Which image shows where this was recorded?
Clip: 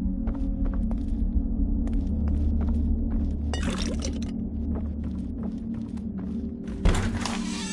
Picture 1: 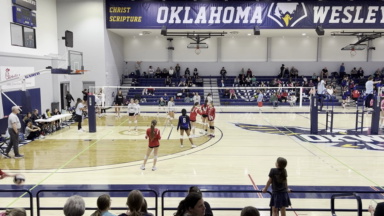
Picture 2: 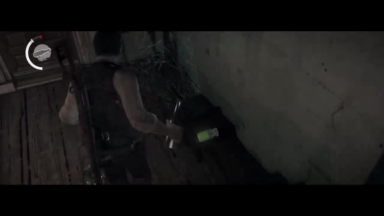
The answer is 2